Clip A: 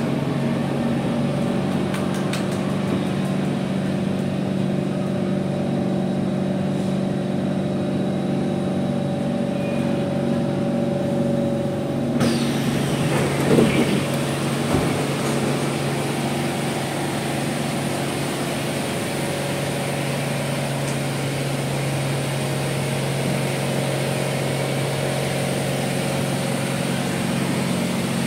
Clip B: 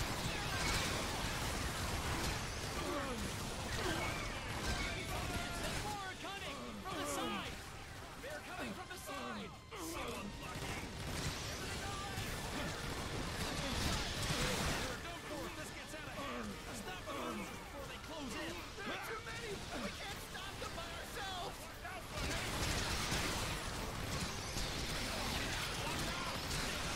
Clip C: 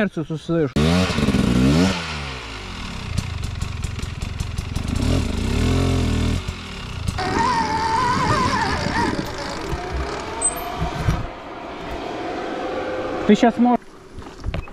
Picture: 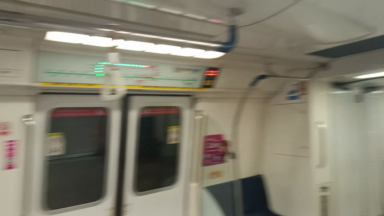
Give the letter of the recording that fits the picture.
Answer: A